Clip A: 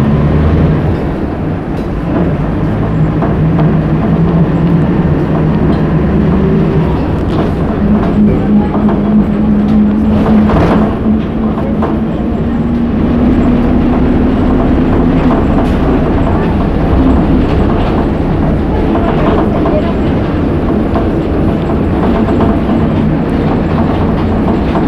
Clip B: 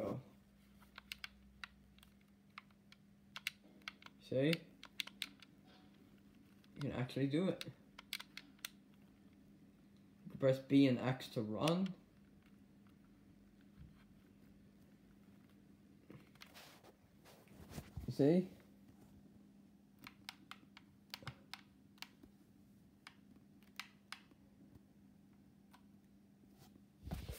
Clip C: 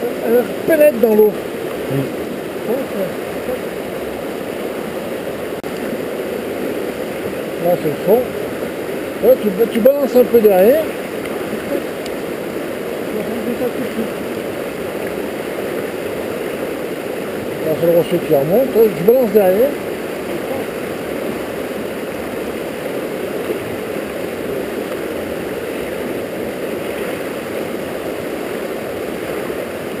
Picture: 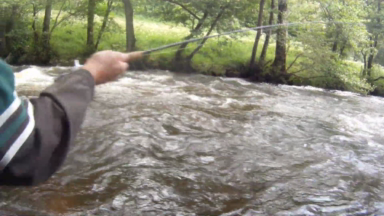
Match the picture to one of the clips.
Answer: C